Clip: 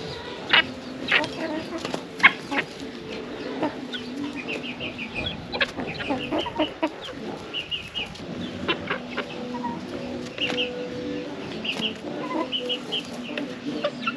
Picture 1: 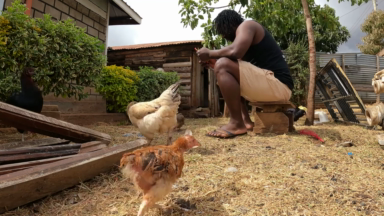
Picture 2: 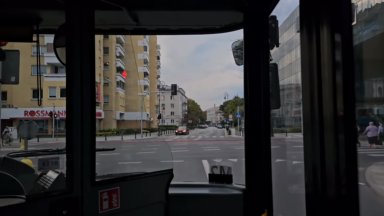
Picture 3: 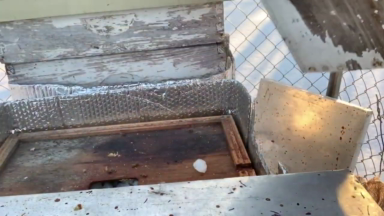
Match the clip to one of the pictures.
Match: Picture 1